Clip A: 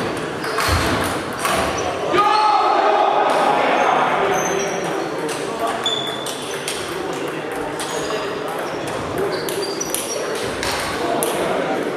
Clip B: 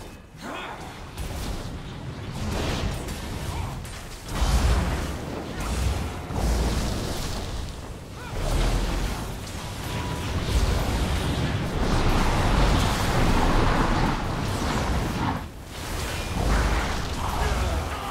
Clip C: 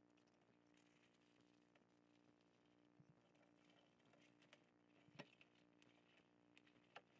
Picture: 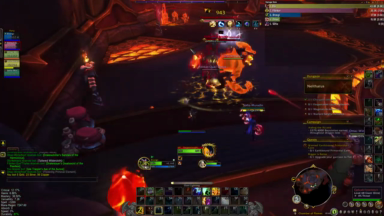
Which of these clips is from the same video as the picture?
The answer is B